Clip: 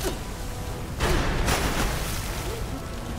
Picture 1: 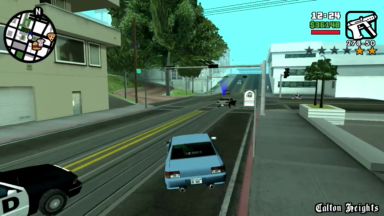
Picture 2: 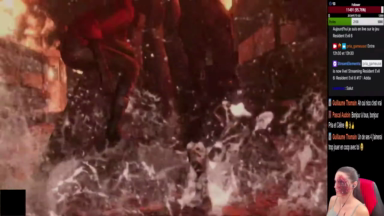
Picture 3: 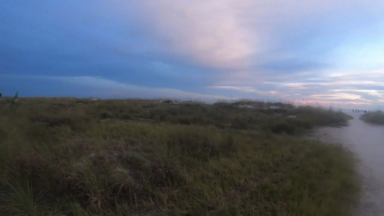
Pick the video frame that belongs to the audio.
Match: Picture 2